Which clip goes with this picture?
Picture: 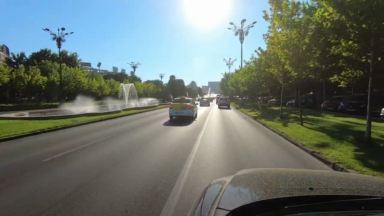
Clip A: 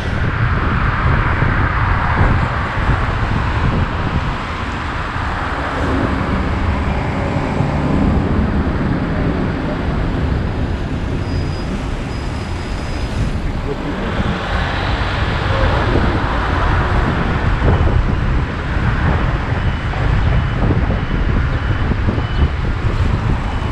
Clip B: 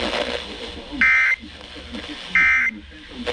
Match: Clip A